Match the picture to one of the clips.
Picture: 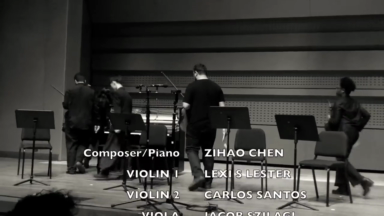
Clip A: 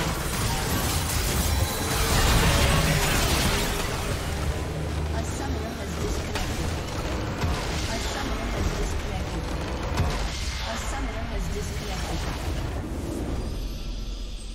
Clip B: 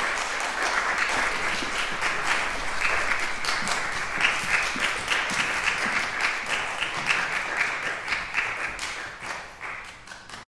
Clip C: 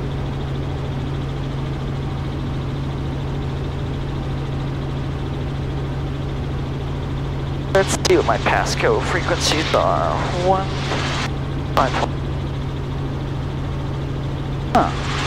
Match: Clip B